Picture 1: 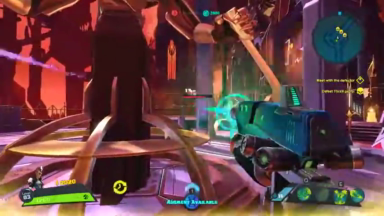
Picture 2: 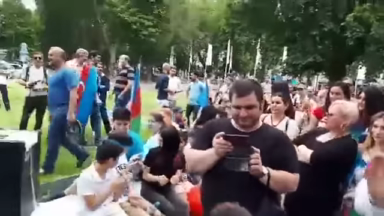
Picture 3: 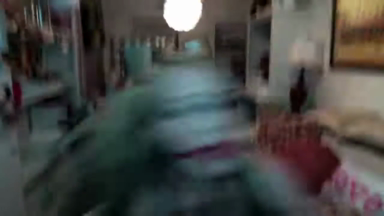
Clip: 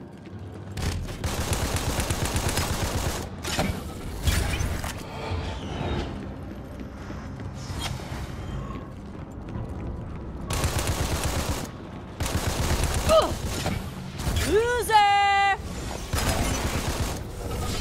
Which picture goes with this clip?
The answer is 1